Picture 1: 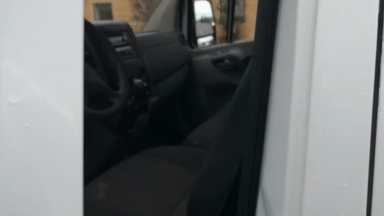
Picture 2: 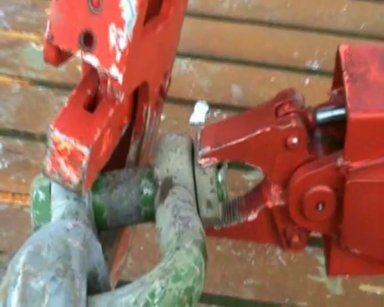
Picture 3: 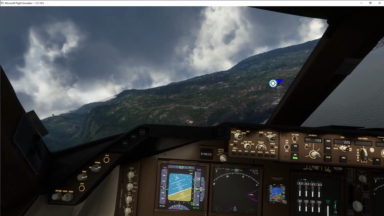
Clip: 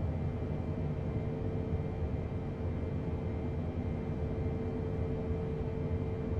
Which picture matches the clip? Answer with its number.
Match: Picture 3